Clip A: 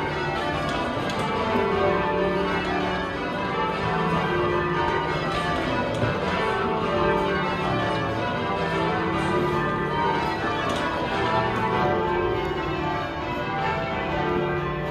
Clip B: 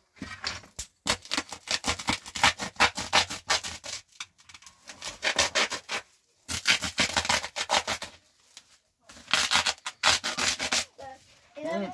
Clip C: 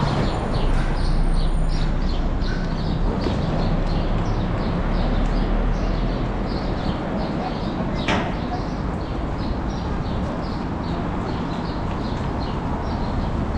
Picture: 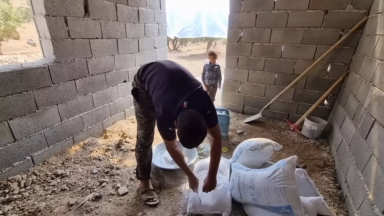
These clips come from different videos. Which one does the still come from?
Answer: B